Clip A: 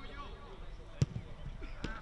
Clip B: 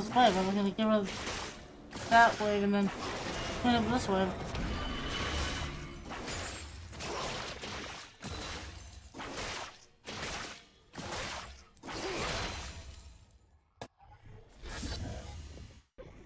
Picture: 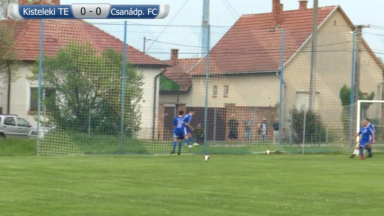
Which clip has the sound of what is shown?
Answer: A